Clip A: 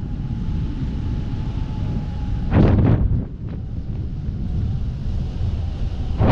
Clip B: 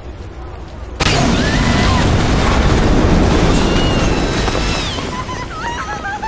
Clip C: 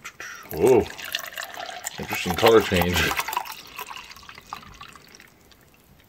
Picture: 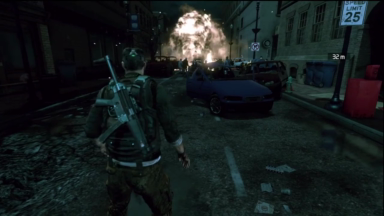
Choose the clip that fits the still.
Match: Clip B